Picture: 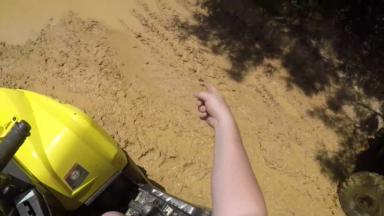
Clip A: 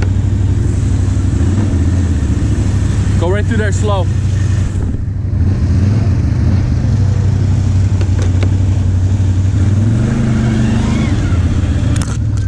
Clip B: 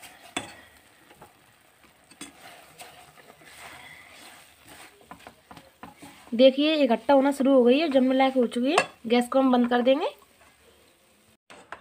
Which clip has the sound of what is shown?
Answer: A